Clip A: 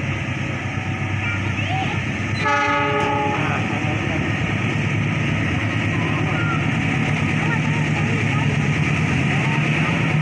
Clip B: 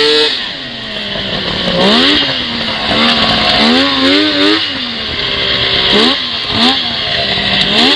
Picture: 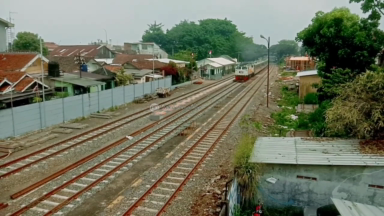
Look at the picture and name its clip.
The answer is A